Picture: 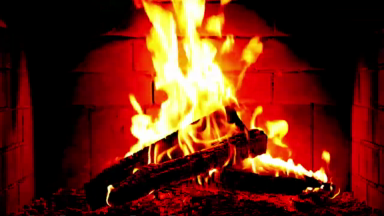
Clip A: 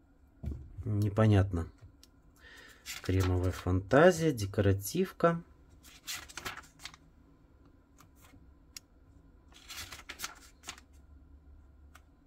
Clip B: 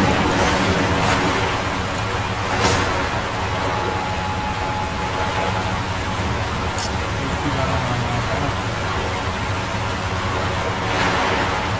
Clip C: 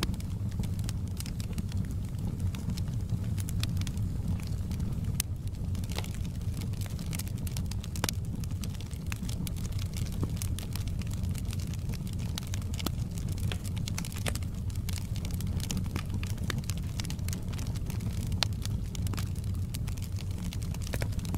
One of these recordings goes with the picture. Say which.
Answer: C